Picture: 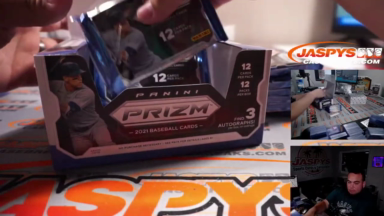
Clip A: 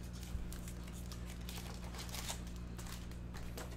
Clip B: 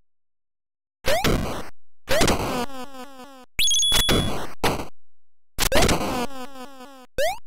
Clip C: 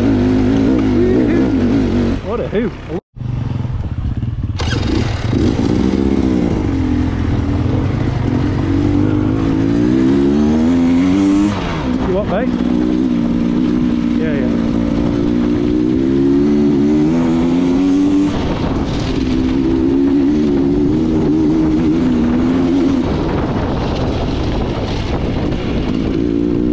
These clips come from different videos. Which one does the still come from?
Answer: A